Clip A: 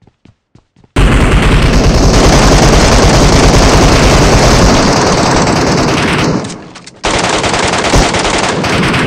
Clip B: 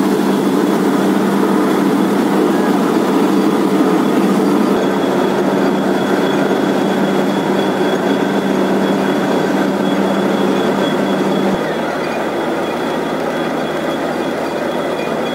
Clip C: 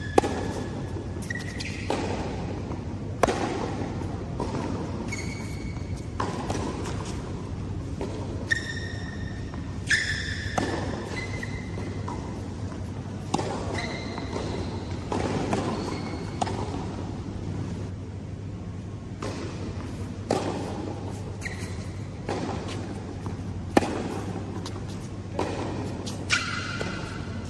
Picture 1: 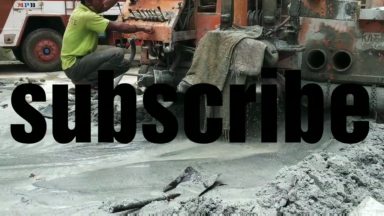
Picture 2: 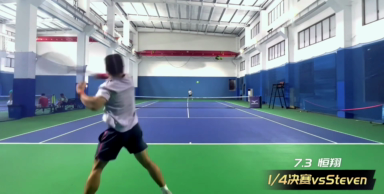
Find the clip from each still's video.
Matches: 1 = B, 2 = C